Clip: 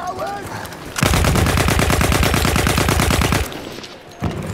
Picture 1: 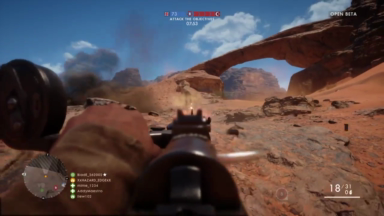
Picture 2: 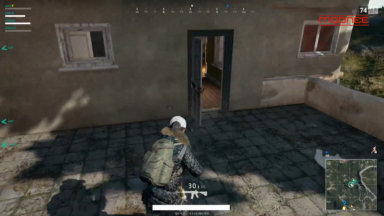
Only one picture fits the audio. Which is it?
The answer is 1